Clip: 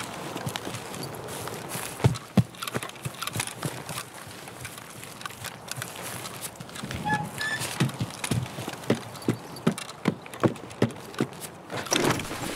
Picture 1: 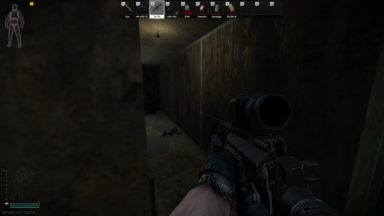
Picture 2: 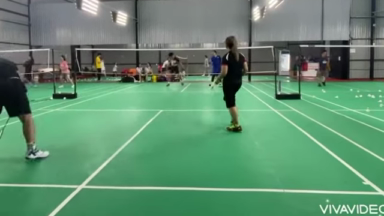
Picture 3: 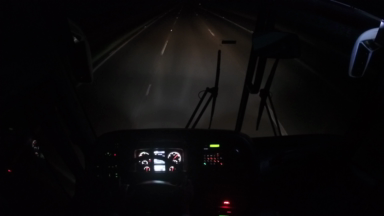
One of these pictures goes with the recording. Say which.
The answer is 1